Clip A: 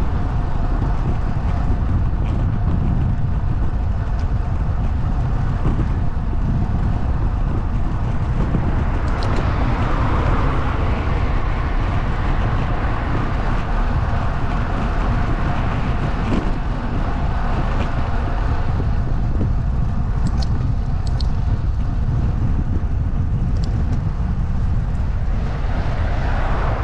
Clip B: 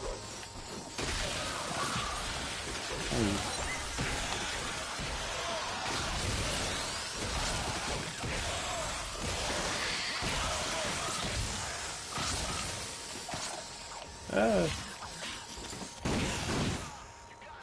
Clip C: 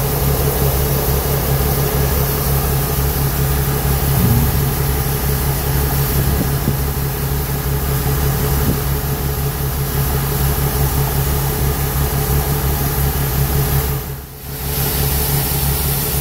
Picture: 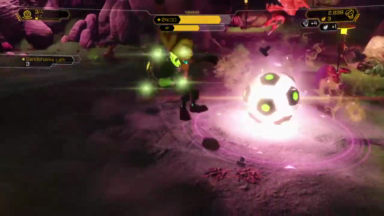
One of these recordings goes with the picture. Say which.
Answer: B